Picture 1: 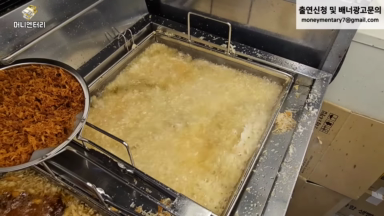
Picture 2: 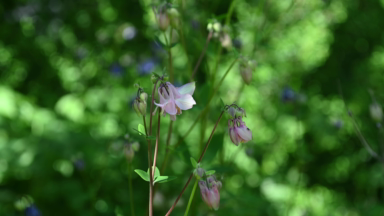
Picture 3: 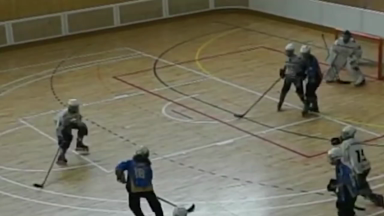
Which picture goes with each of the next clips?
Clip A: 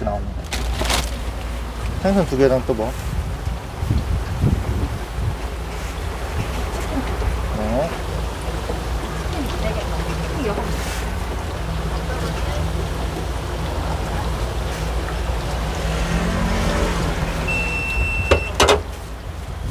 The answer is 1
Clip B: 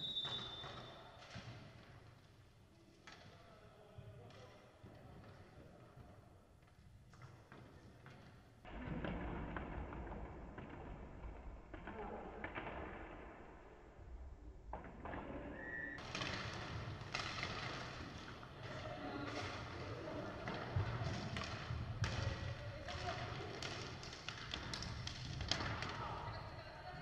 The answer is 3